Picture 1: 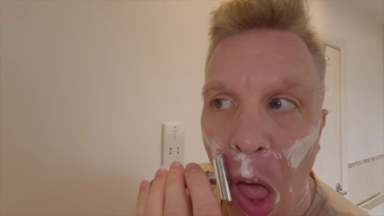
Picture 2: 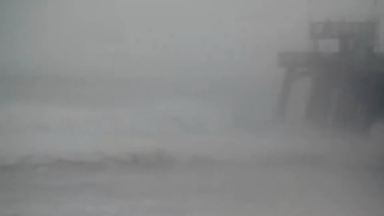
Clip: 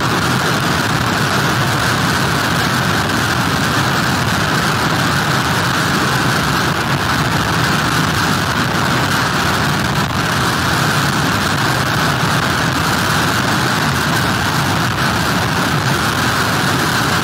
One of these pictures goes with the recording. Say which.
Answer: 2